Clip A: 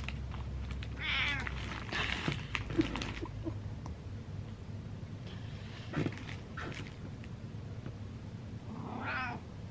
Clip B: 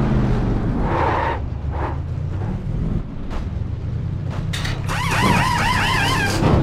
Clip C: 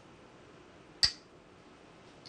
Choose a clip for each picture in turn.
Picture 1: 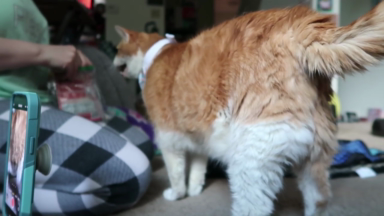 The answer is A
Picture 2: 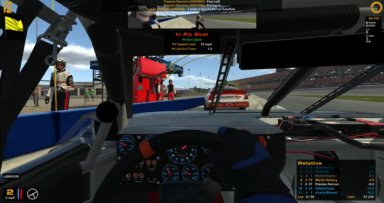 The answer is B